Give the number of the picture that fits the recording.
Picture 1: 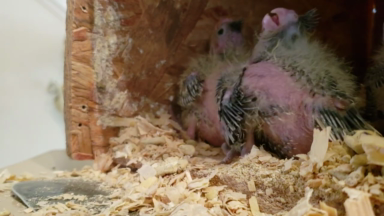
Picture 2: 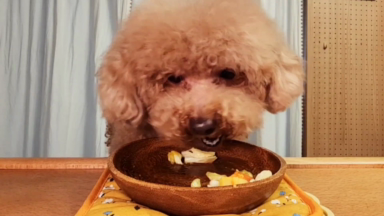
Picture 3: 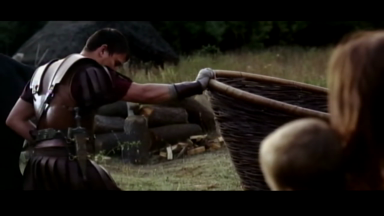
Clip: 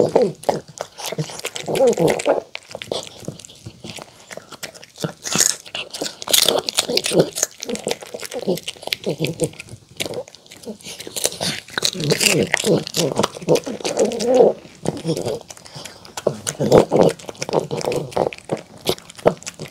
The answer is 2